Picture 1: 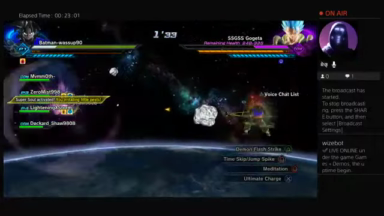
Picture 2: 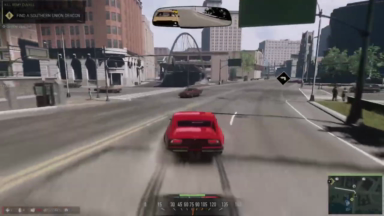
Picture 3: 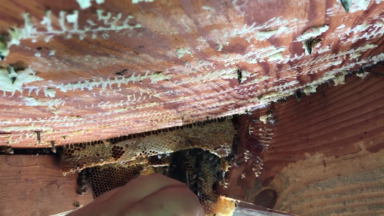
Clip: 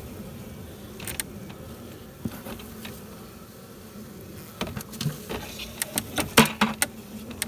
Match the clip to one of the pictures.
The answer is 3